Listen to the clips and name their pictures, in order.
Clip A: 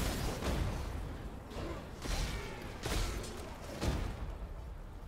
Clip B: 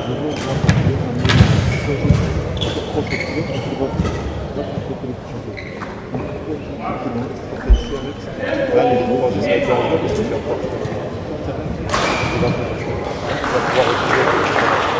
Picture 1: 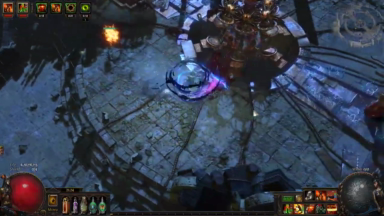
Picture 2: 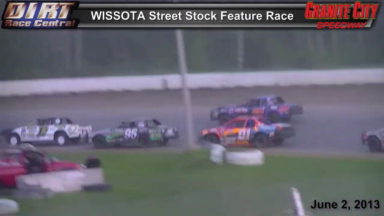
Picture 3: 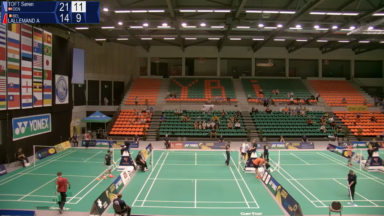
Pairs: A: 1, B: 3